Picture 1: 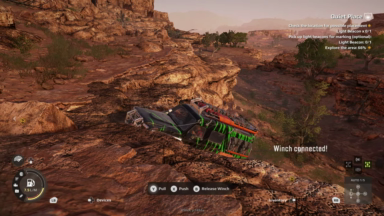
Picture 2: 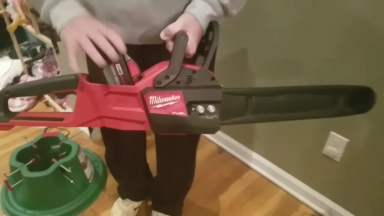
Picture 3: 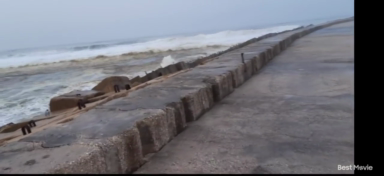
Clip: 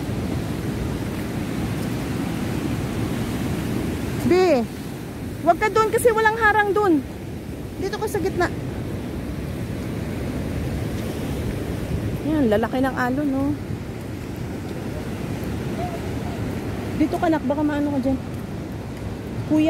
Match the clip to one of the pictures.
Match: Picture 3